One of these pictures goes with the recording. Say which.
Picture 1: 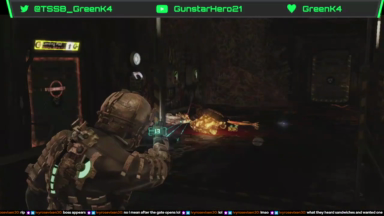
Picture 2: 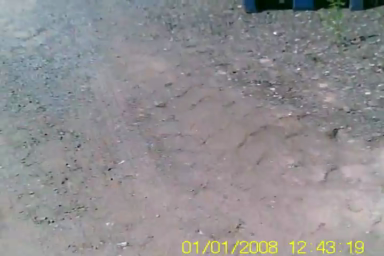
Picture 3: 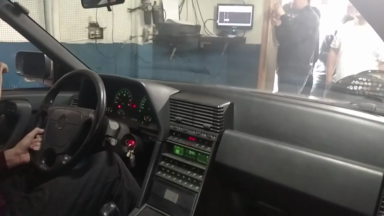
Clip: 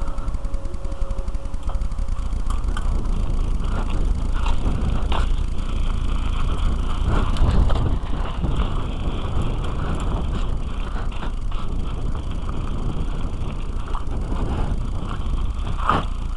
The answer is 2